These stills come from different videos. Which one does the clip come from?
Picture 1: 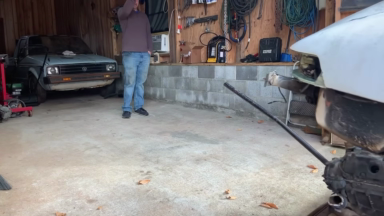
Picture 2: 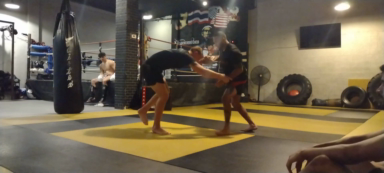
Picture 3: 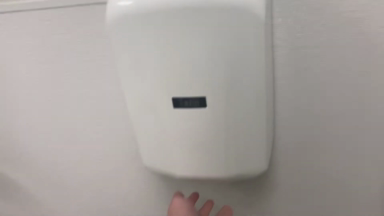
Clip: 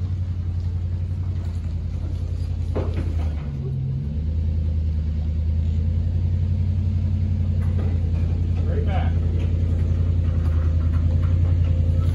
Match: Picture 1